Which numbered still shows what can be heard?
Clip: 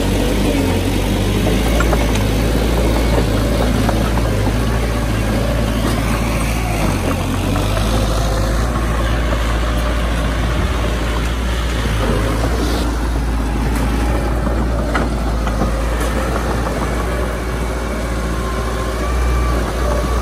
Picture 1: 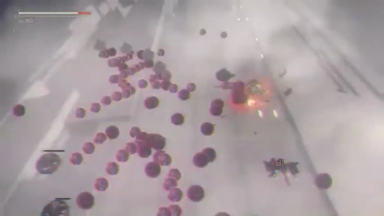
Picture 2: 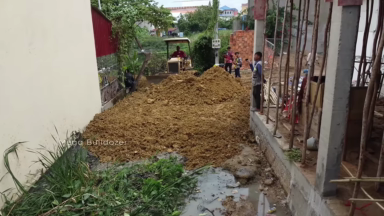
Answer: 2